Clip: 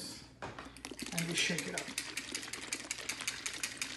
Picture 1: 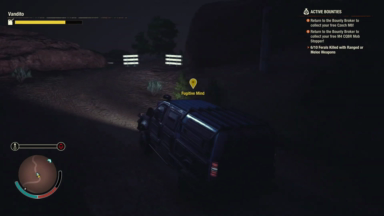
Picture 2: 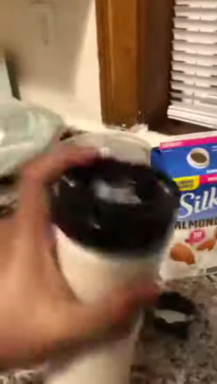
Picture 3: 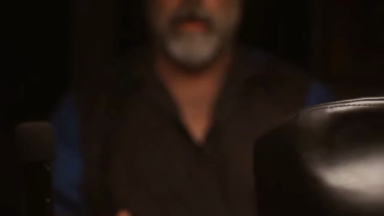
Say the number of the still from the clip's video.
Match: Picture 2